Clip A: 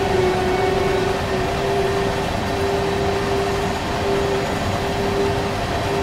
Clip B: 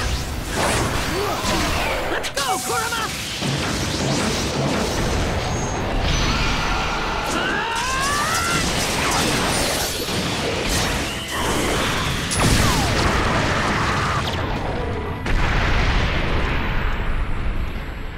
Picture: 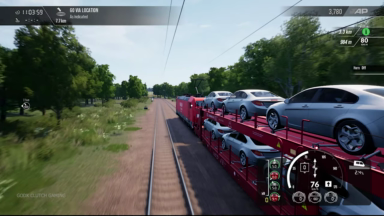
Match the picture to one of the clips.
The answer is A